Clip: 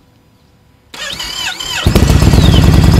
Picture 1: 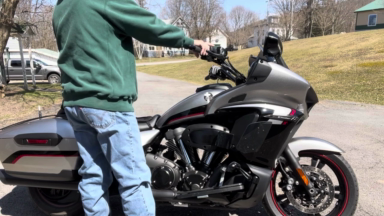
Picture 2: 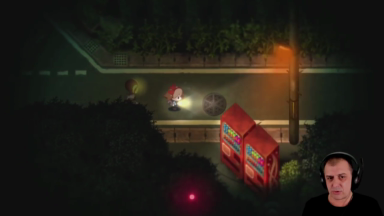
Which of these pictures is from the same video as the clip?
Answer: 1